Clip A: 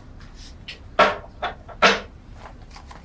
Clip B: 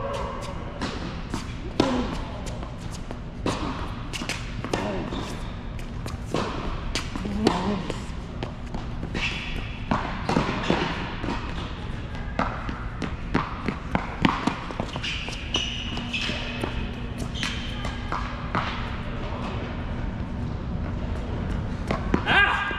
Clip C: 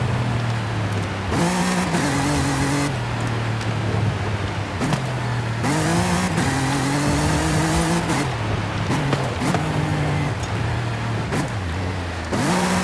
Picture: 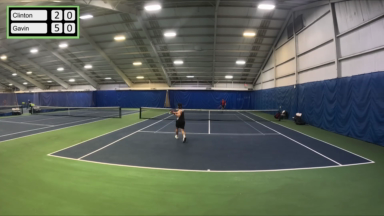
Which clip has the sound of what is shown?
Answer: B